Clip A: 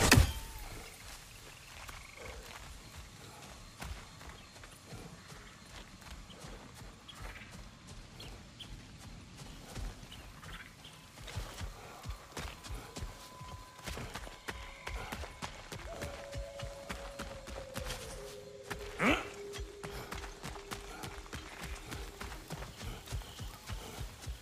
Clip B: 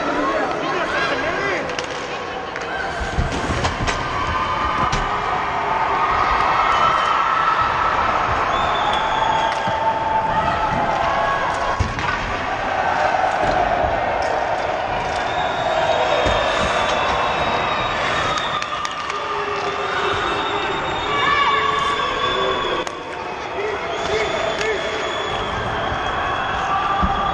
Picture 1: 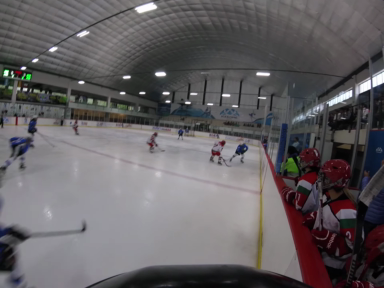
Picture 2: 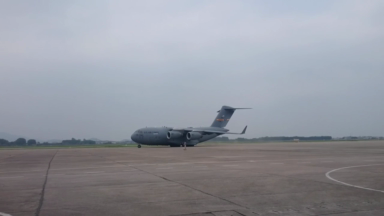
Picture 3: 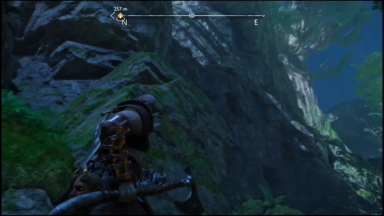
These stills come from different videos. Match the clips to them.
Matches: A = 3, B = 1